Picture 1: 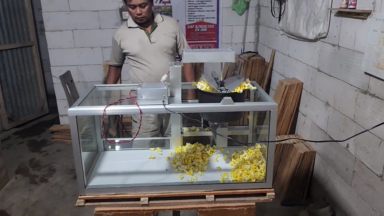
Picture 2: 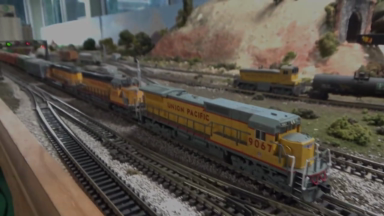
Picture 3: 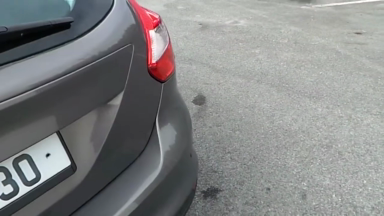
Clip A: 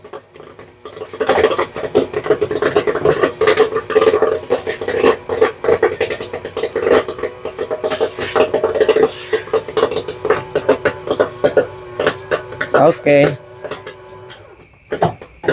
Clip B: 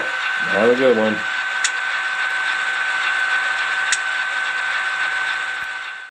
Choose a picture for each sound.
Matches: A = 1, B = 2